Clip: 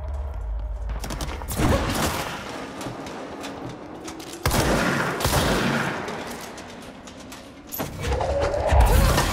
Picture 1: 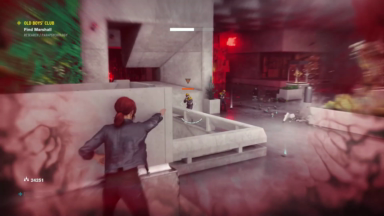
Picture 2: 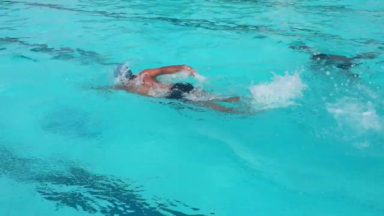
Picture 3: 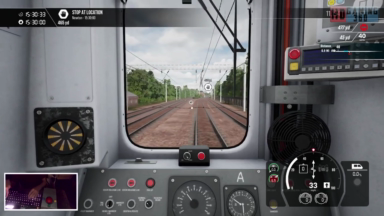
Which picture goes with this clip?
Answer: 1